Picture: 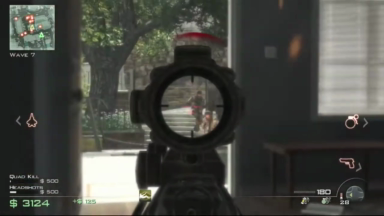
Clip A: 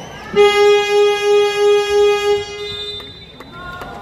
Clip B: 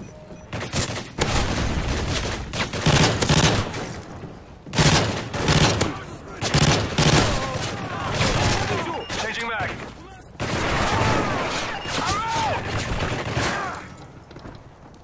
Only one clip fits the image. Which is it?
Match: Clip B